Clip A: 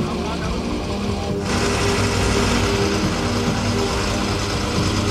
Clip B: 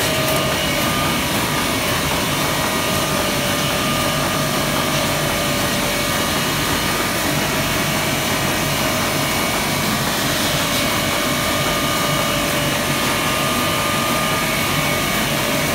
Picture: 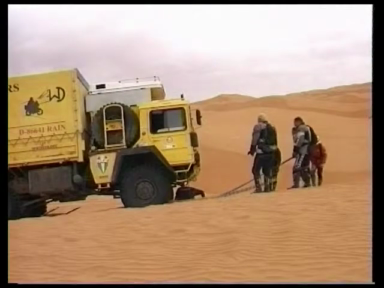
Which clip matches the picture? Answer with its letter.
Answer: A